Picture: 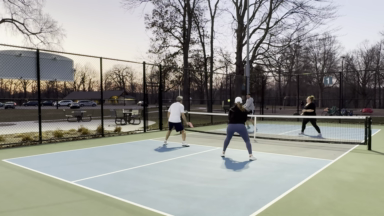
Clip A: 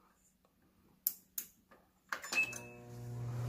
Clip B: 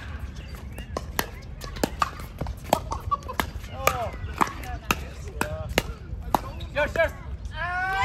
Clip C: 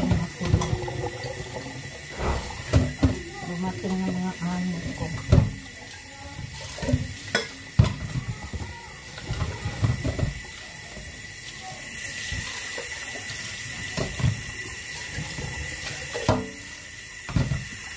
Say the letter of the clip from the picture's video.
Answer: B